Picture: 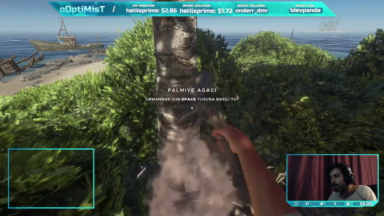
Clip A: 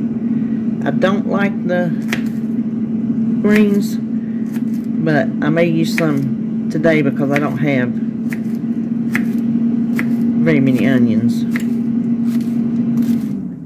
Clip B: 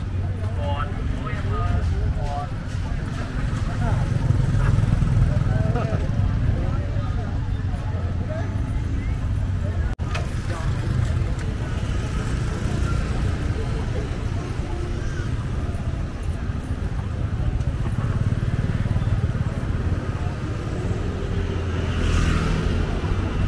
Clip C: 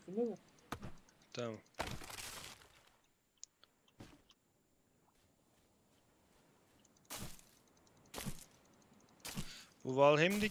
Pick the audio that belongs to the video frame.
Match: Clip C